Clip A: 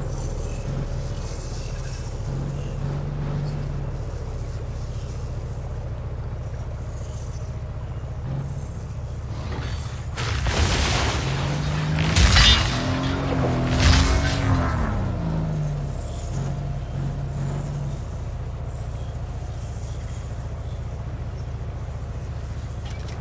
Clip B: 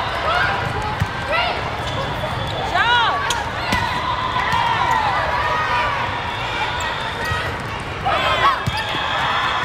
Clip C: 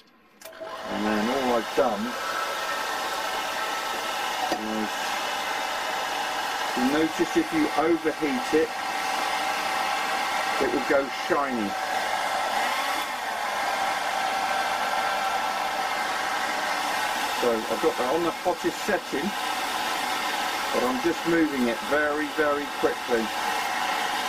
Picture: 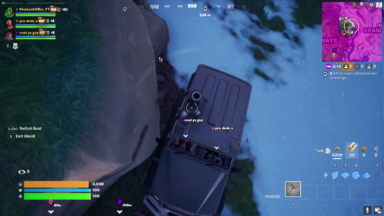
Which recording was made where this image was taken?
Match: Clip A